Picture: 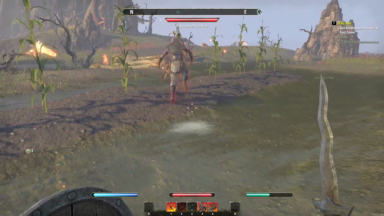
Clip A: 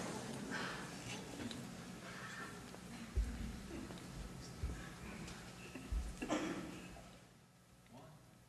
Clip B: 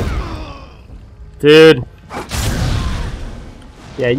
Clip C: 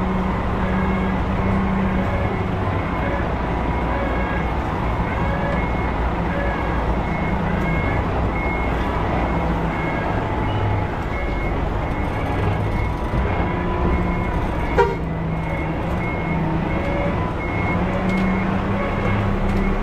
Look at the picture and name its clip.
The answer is B